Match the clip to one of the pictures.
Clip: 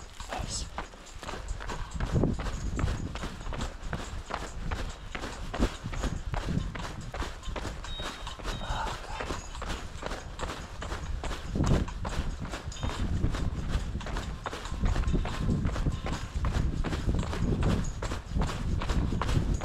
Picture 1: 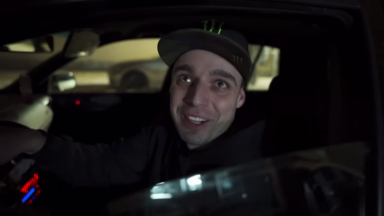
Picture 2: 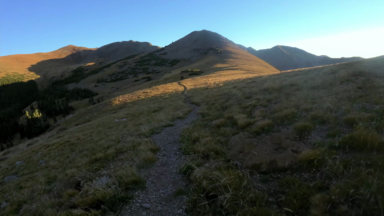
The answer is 2